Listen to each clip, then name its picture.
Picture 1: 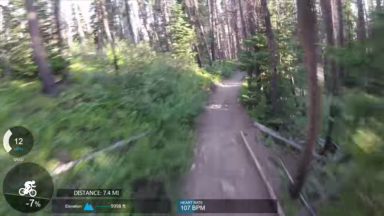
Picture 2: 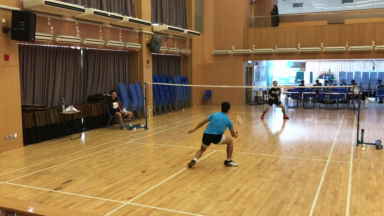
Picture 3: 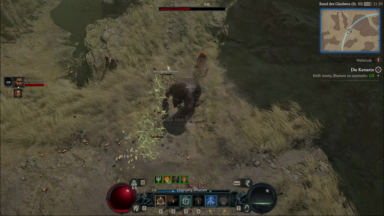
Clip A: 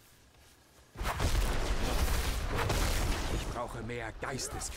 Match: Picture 3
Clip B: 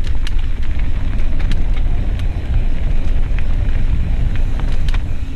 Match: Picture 1